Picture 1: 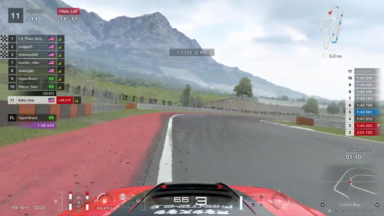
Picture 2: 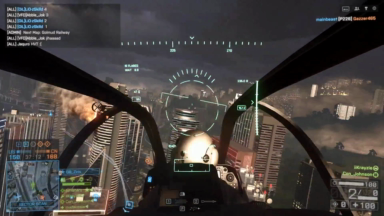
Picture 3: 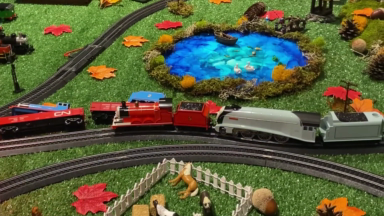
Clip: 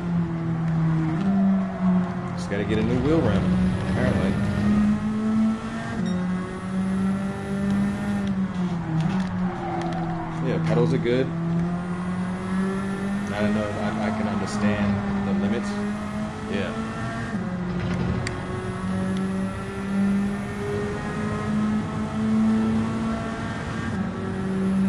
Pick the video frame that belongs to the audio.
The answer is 1